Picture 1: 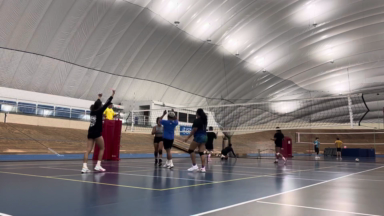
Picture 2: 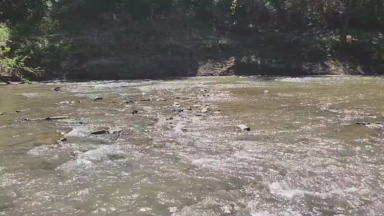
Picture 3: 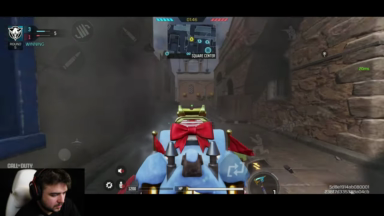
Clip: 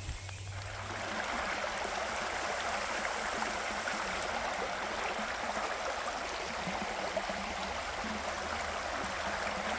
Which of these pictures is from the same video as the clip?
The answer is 2